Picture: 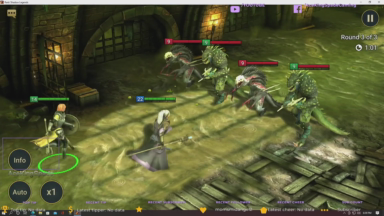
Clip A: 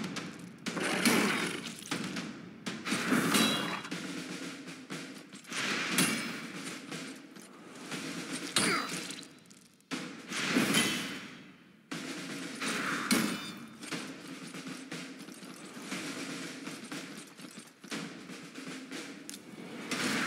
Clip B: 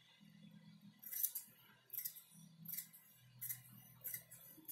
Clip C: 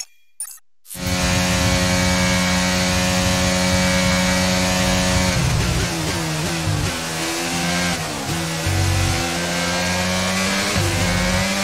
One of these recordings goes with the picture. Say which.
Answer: A